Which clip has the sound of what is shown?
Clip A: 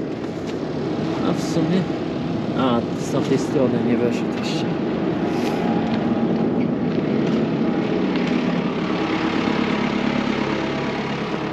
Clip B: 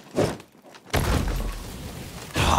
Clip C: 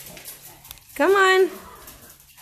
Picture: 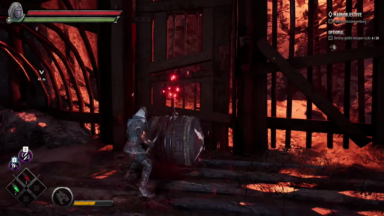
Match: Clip B